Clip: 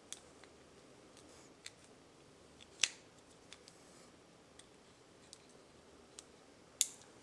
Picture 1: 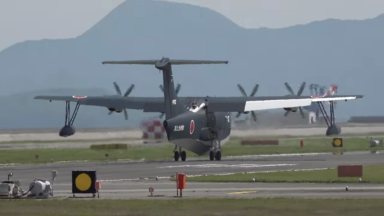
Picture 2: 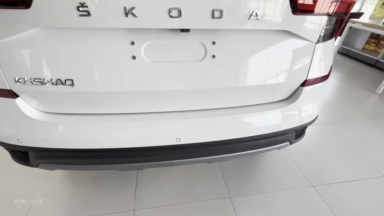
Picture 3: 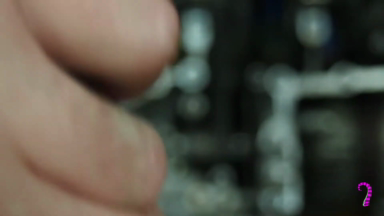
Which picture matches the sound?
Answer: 3